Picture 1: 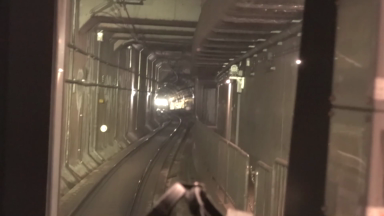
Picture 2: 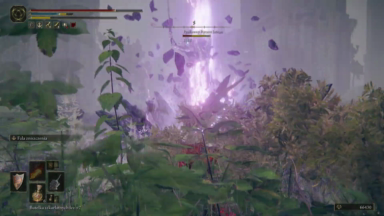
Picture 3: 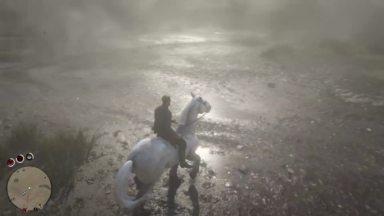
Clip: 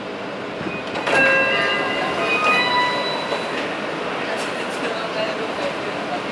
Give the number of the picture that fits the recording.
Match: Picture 1